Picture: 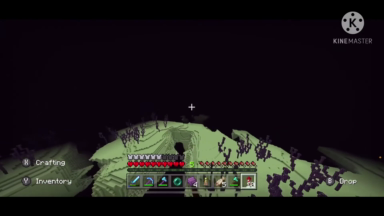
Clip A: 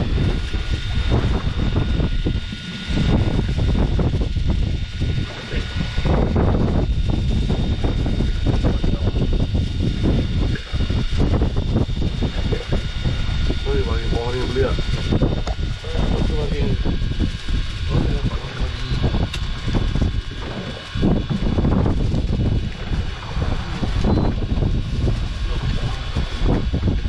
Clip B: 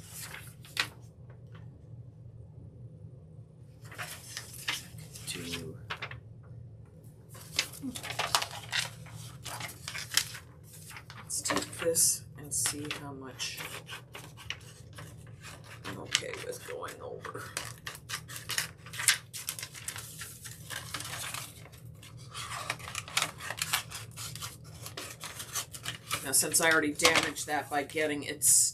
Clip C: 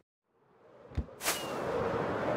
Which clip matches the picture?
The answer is C